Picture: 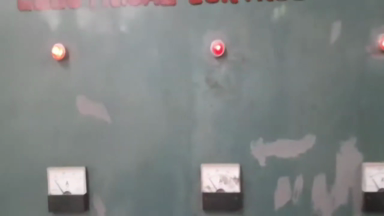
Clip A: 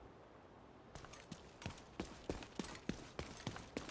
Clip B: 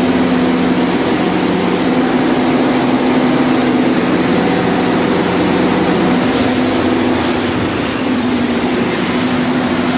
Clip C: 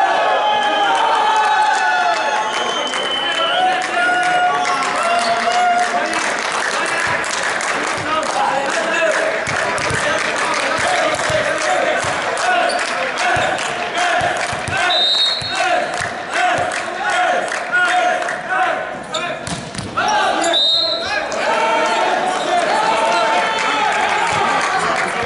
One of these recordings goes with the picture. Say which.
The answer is B